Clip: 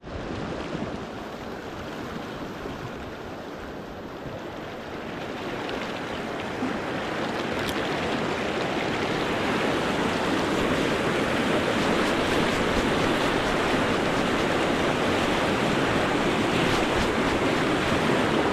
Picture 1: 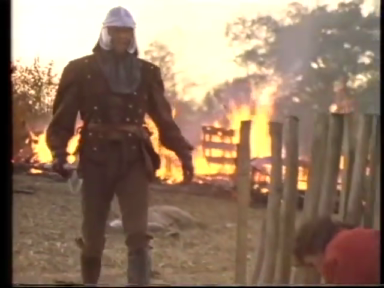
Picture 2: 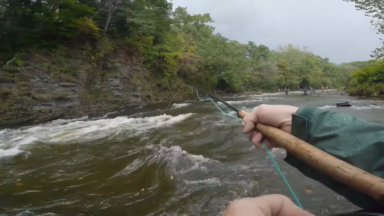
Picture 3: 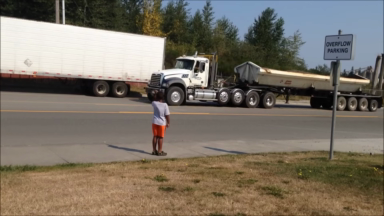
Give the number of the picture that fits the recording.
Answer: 2